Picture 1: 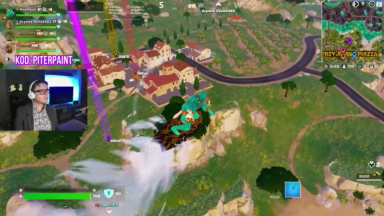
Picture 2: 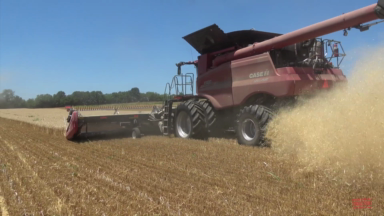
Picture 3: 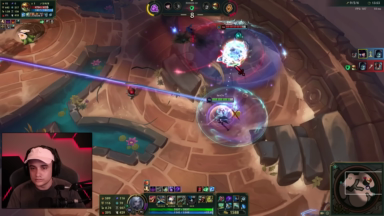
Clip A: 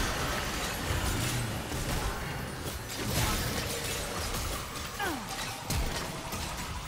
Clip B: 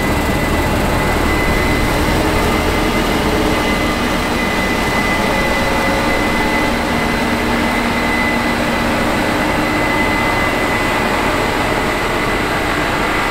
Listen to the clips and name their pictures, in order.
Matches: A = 3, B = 2